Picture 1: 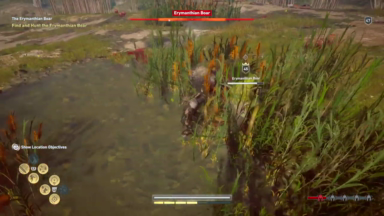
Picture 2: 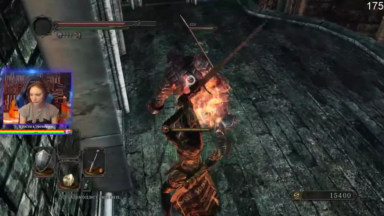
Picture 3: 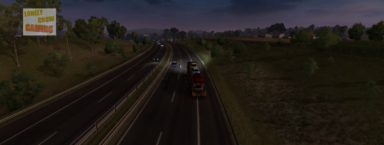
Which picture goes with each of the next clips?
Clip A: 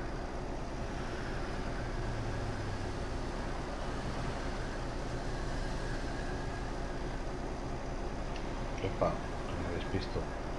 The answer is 3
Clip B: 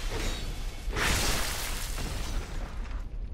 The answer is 2